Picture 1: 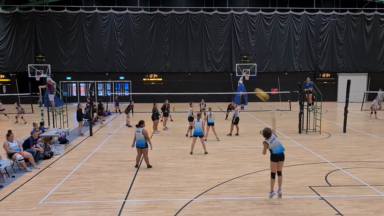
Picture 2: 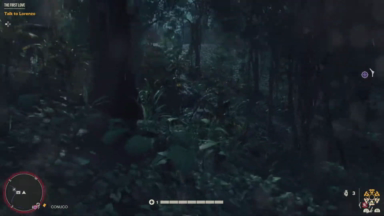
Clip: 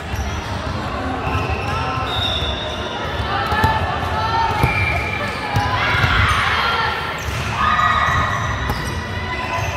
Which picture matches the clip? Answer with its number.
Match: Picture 1